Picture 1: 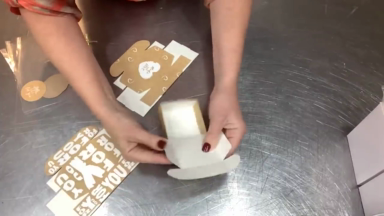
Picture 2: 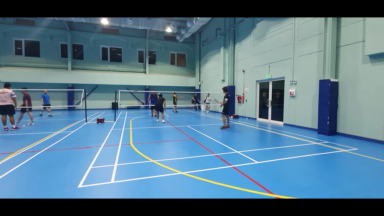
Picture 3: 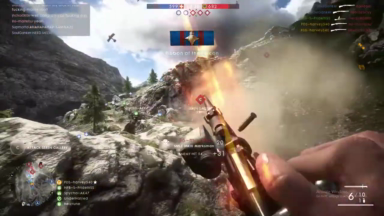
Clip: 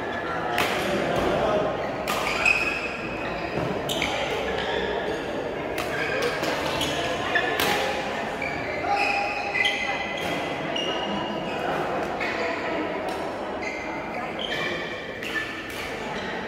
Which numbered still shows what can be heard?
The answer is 2